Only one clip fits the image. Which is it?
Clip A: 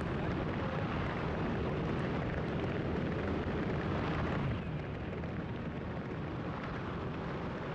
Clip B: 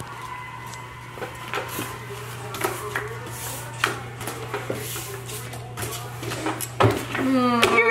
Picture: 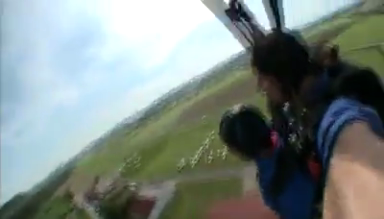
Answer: A